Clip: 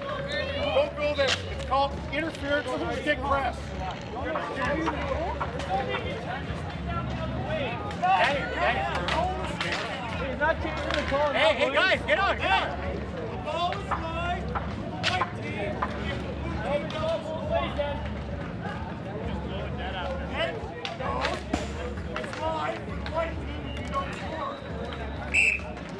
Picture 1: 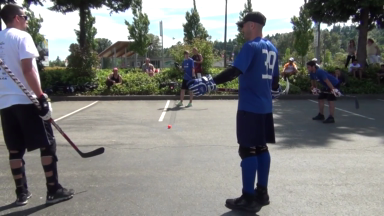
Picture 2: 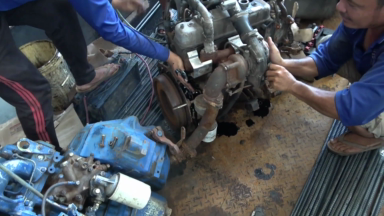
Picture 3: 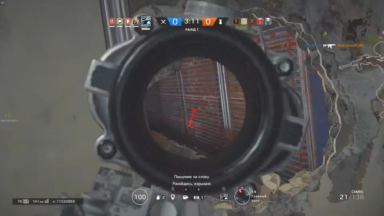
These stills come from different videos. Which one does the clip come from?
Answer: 1